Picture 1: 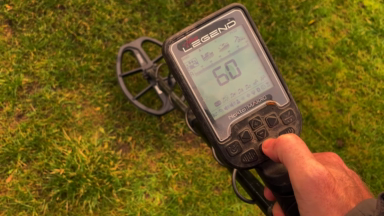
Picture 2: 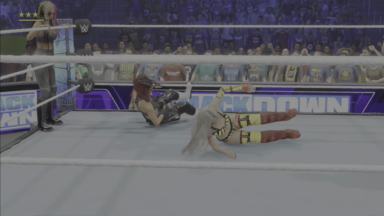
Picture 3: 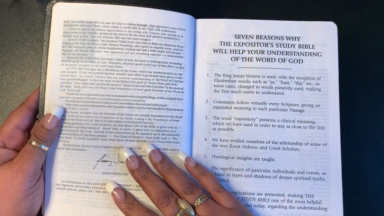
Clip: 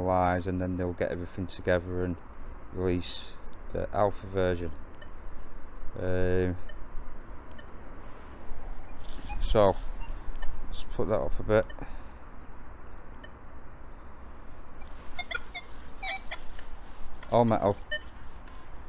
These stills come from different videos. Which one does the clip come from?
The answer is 1